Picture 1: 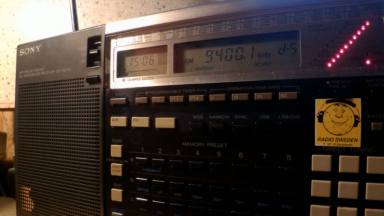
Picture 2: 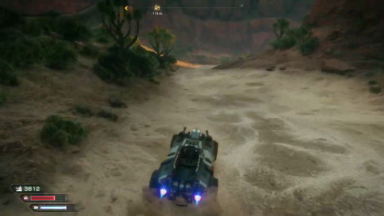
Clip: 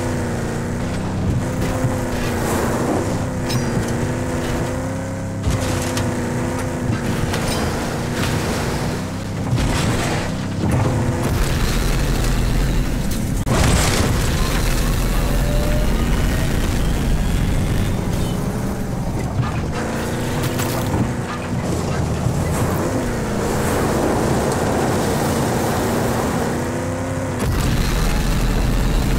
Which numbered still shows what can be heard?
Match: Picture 2